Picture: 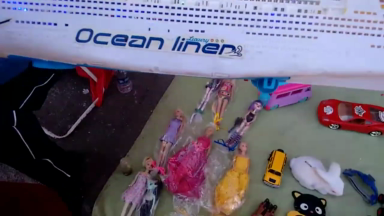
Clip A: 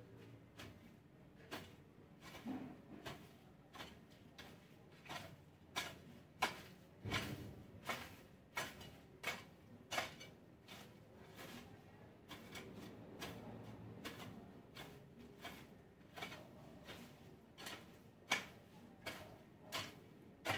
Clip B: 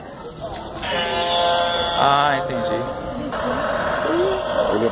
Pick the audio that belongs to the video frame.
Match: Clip B